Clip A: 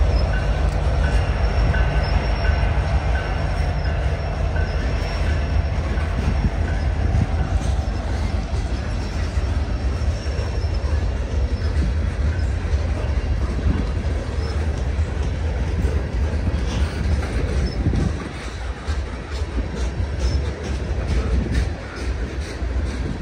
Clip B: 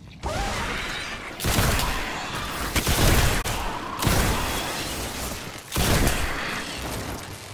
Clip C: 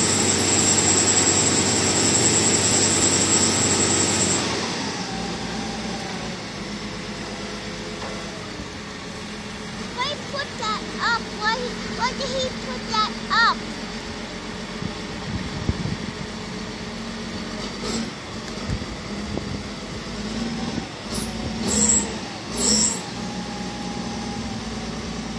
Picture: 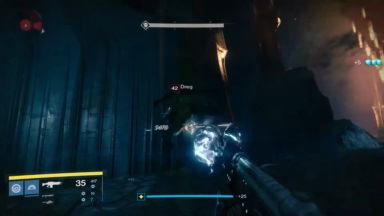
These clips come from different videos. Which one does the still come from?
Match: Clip B